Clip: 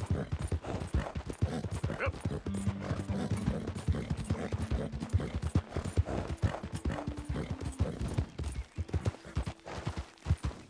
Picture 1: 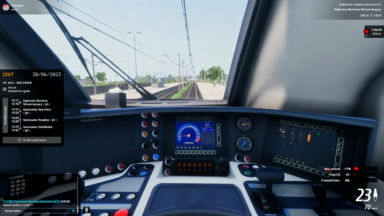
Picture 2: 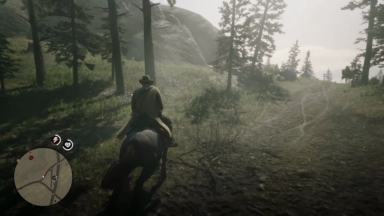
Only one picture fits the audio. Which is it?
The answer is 2